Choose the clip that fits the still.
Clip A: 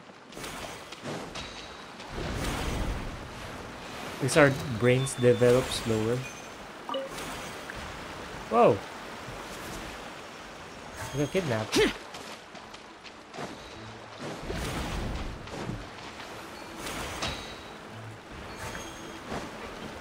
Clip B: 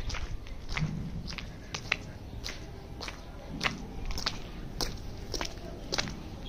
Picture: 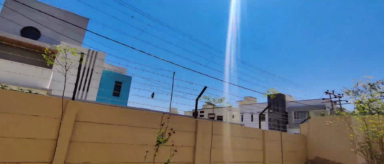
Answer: B